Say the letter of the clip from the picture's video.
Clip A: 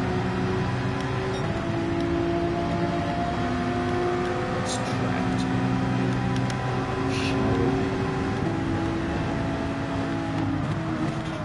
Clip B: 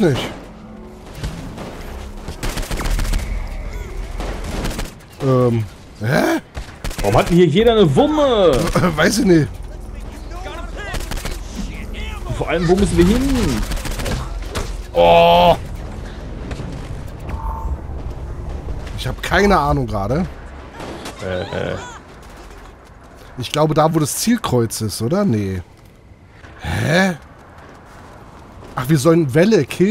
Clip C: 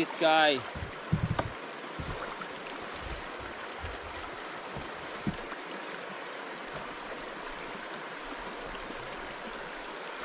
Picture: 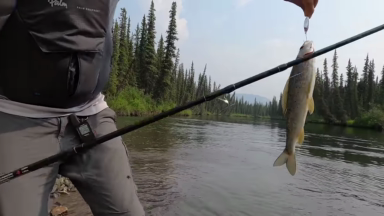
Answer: C